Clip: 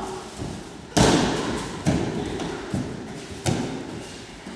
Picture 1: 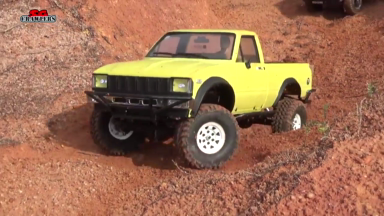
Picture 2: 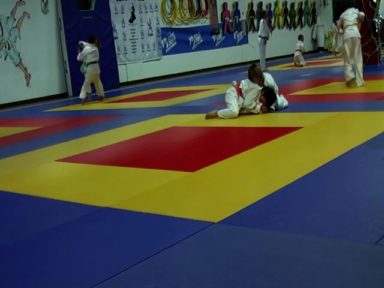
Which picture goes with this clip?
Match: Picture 2